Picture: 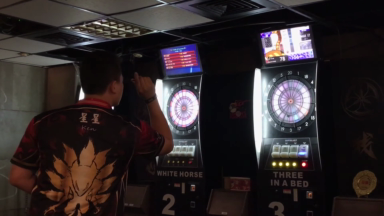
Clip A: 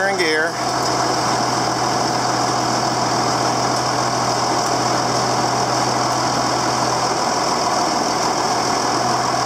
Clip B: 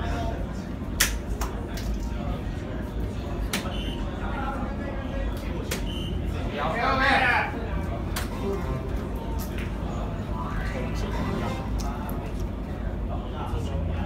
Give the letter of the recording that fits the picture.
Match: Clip B